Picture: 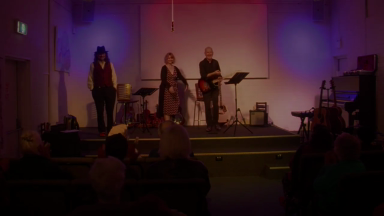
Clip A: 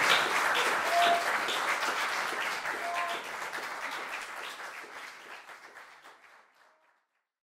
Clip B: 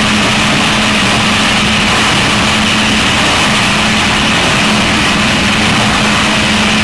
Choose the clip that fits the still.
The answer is A